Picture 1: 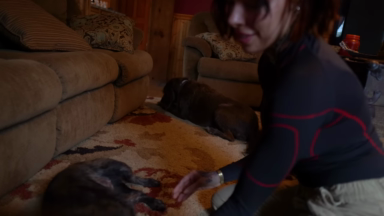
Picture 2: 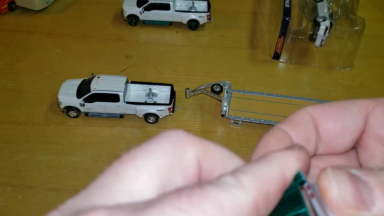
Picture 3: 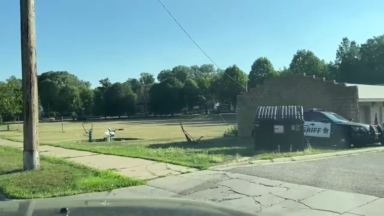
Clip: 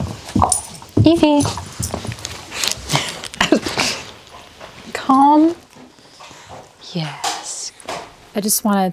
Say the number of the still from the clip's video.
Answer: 1